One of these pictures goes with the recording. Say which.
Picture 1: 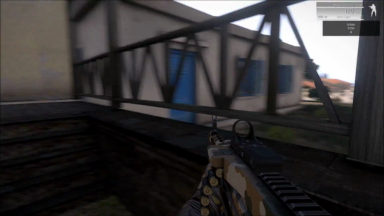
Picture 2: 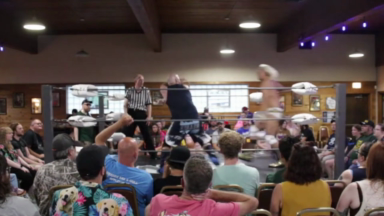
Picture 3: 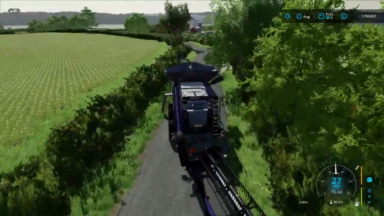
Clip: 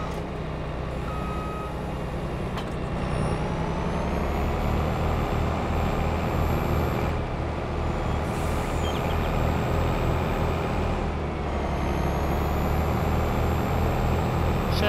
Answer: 3